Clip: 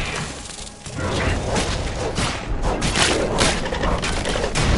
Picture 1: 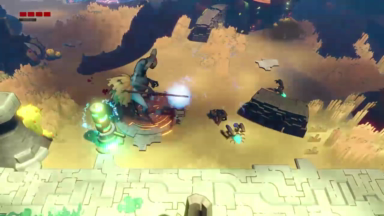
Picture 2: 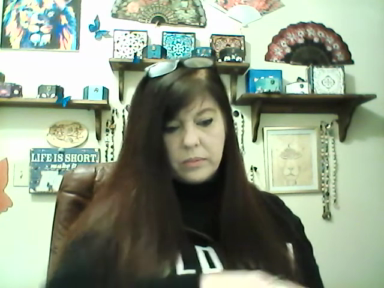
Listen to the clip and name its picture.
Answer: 1